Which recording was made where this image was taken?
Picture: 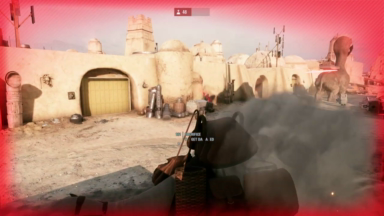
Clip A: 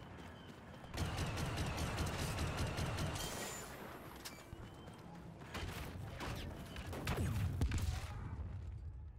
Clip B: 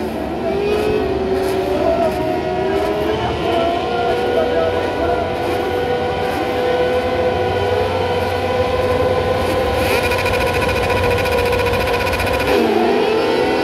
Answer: A